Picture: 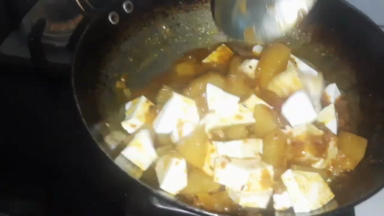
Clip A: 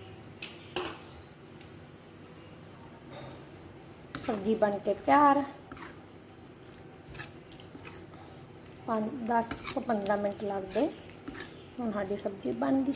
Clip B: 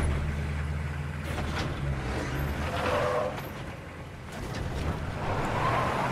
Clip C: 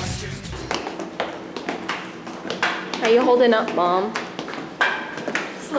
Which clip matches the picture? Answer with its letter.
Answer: A